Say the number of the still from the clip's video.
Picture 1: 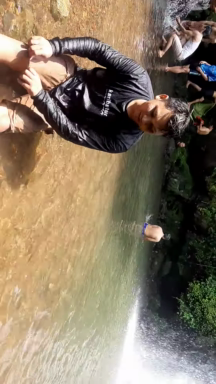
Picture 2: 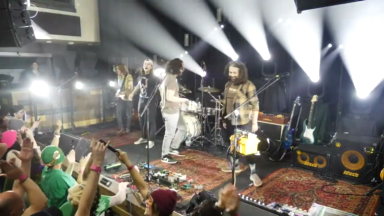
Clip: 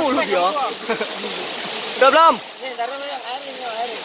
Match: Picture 1